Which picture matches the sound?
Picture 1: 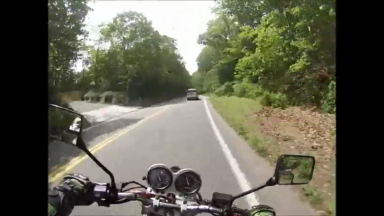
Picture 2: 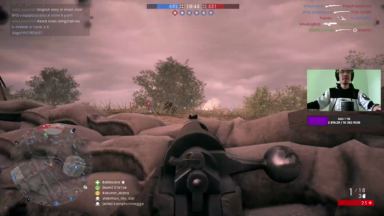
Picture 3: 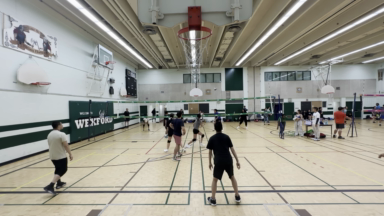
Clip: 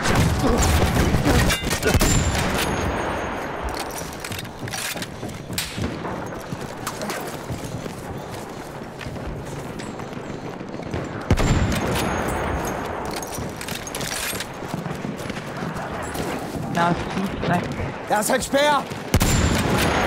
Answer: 2